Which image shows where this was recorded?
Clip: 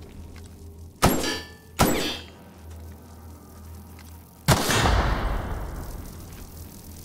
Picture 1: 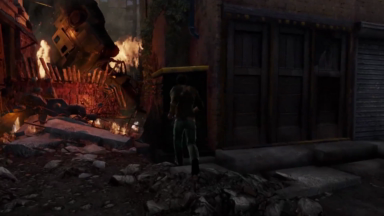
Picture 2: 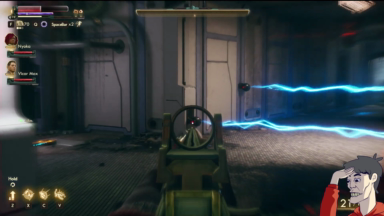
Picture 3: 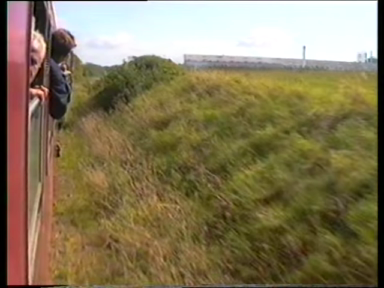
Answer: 2